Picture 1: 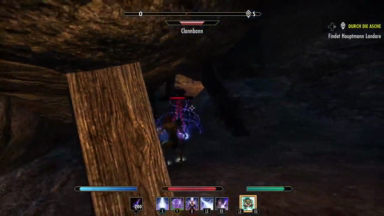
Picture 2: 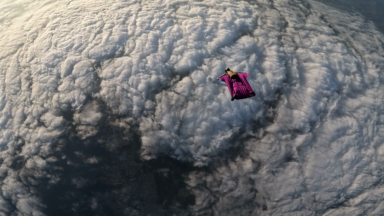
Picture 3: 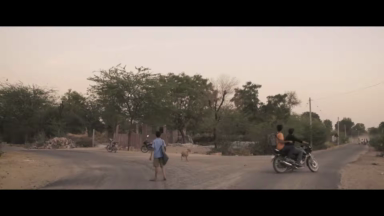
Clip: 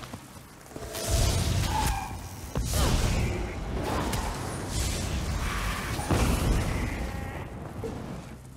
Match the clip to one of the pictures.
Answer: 1